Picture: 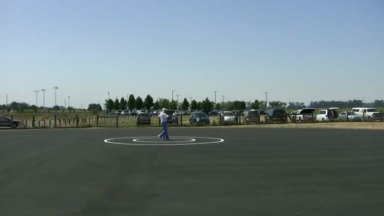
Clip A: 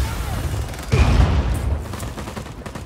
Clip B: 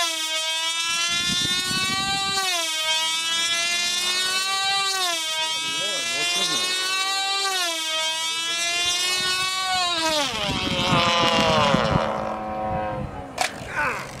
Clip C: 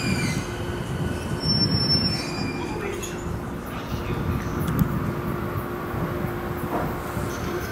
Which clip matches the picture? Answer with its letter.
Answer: B